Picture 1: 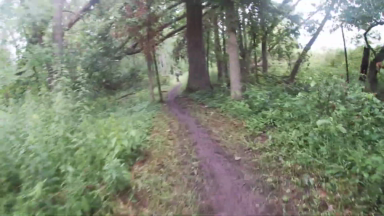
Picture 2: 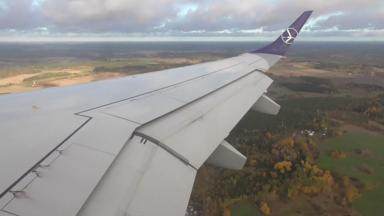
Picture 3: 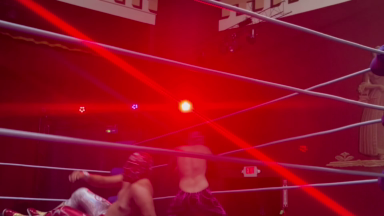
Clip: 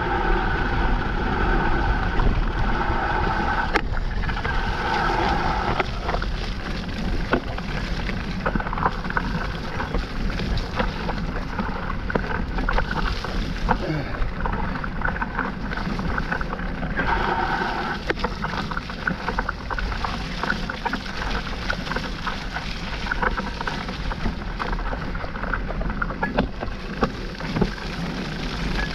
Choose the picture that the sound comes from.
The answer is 1